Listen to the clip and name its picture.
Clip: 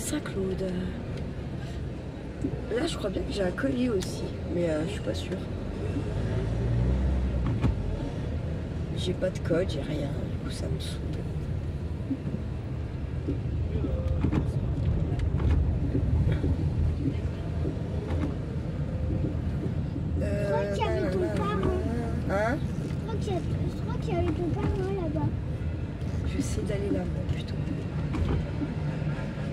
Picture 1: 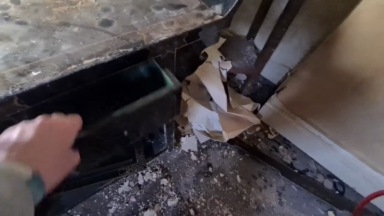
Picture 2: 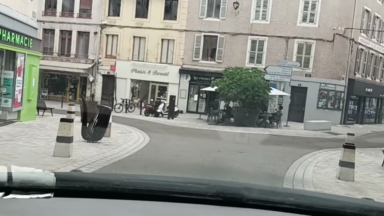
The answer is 2